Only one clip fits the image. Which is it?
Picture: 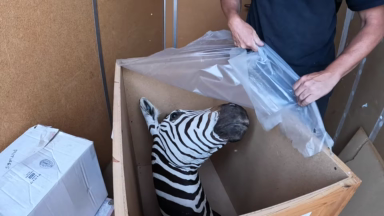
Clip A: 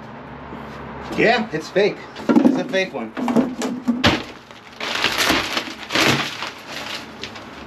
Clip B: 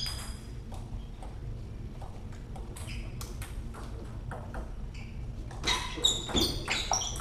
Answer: A